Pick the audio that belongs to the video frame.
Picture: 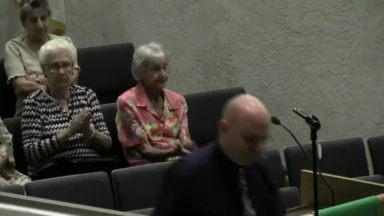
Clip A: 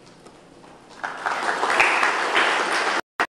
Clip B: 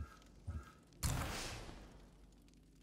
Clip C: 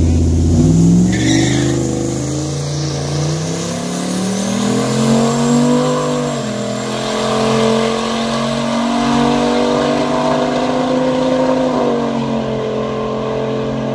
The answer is A